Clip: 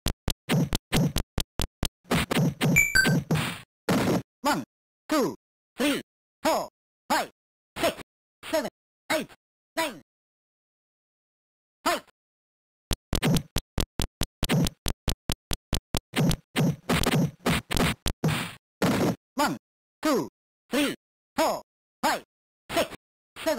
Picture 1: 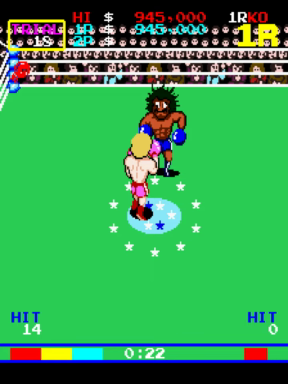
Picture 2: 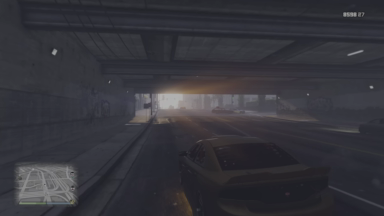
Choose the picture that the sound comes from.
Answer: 1